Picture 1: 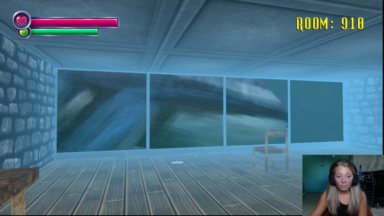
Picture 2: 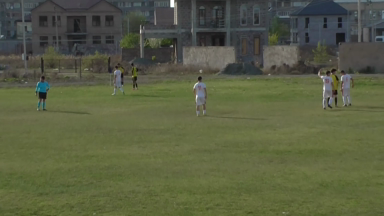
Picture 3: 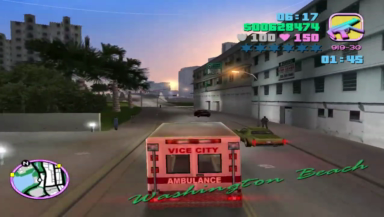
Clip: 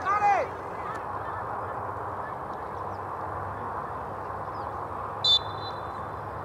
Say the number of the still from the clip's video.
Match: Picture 2